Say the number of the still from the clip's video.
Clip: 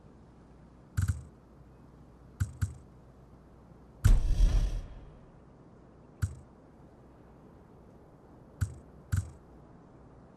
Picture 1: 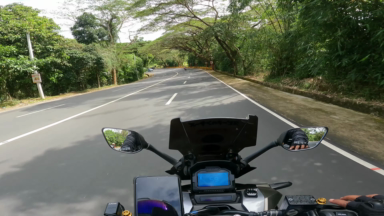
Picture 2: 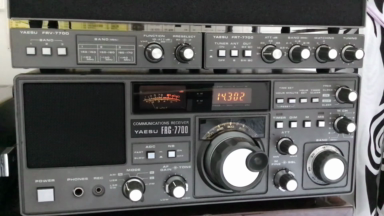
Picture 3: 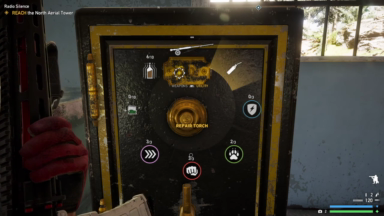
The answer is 3